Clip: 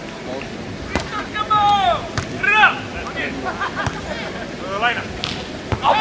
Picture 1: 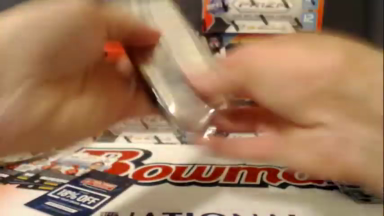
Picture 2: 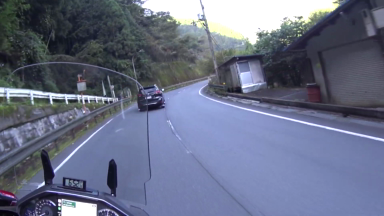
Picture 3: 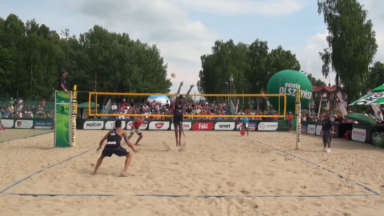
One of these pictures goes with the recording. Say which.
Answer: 3